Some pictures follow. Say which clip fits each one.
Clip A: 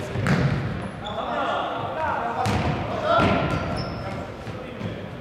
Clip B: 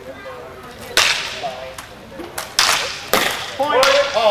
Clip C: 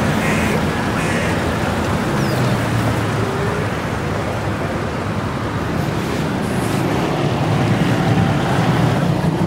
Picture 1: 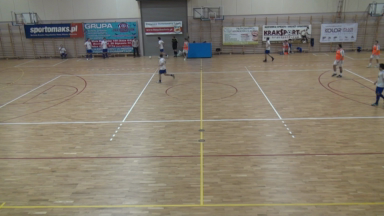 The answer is A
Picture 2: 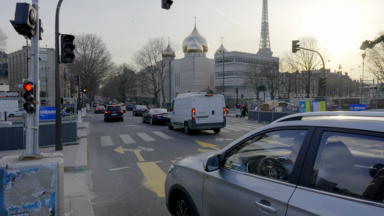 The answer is C